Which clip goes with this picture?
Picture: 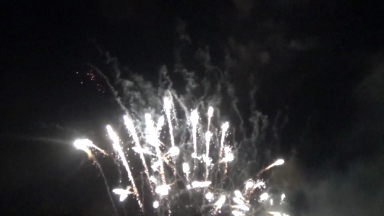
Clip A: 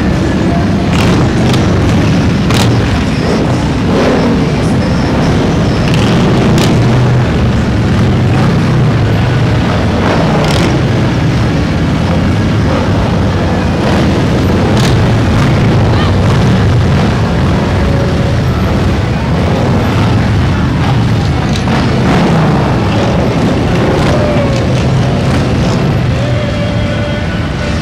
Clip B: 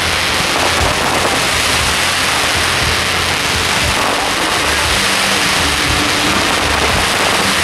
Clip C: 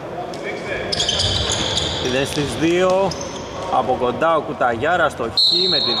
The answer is B